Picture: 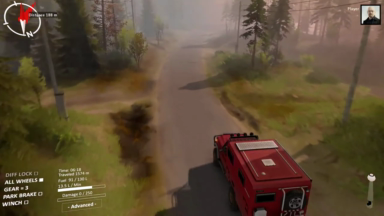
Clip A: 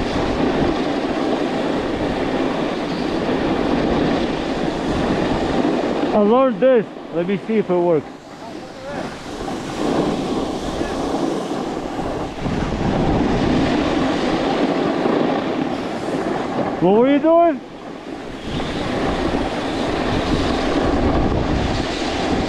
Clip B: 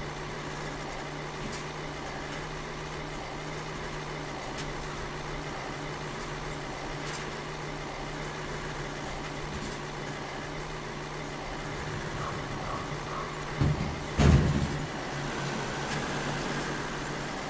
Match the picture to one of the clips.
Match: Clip B